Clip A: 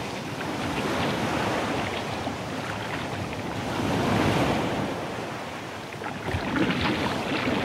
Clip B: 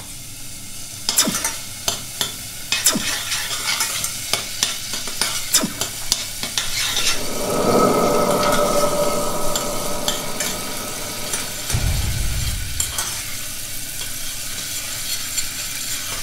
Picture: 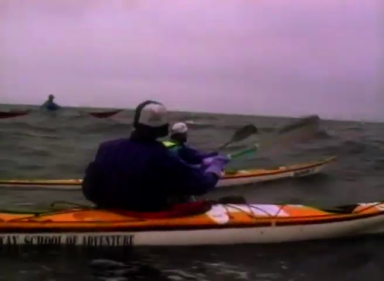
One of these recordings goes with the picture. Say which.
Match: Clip A